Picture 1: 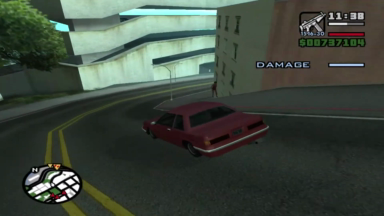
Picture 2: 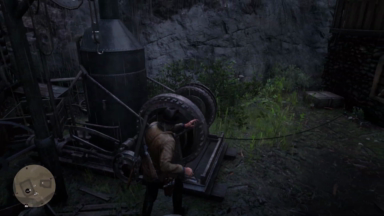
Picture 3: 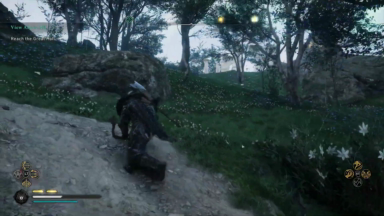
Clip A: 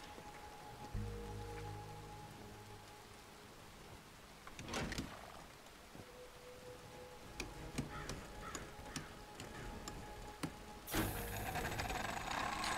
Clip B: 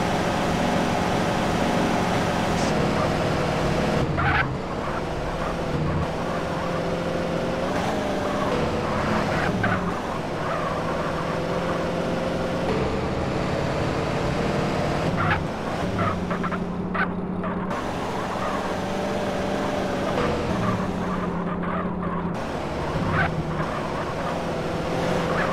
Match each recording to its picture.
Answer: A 2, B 1